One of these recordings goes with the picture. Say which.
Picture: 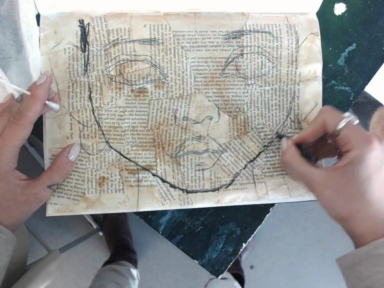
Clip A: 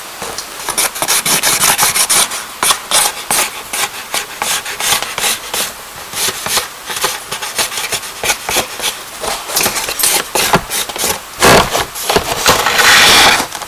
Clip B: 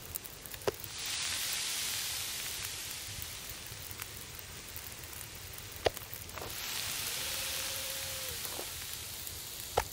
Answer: A